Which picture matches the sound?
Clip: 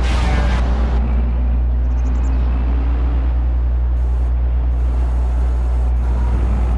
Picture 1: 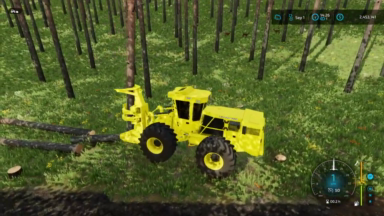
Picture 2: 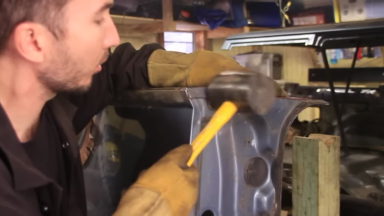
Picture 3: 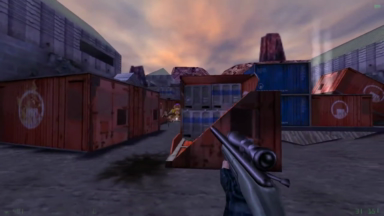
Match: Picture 1